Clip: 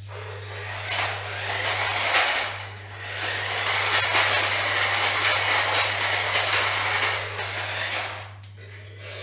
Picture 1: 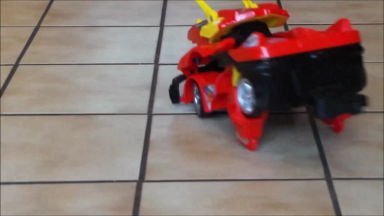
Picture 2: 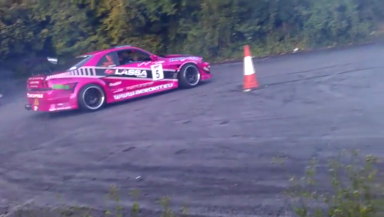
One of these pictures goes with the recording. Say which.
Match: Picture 1